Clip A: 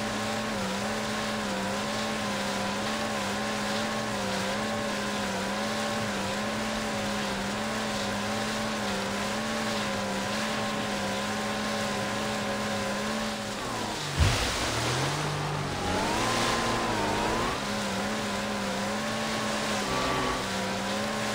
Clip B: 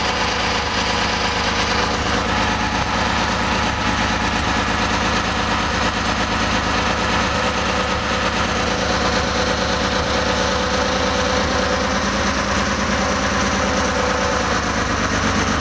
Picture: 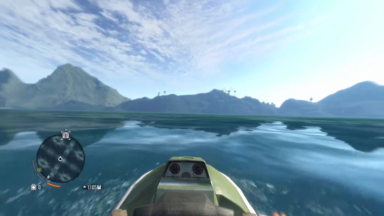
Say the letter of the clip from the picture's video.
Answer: A